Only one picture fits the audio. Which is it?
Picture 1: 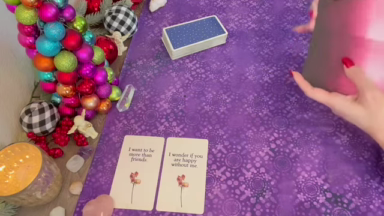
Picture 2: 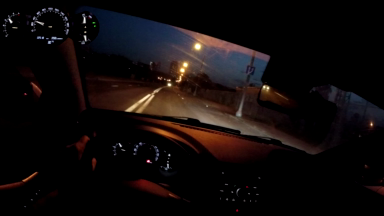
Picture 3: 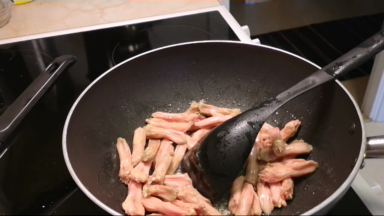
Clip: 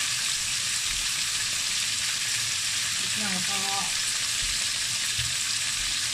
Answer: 3